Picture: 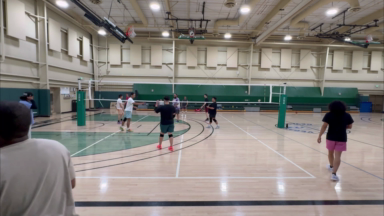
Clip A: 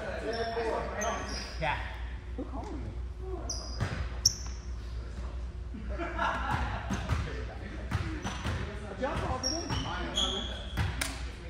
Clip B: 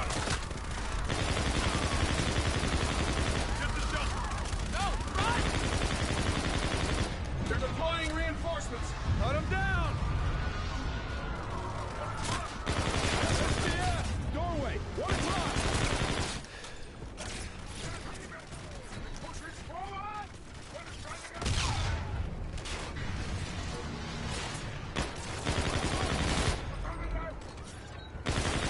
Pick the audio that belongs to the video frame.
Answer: A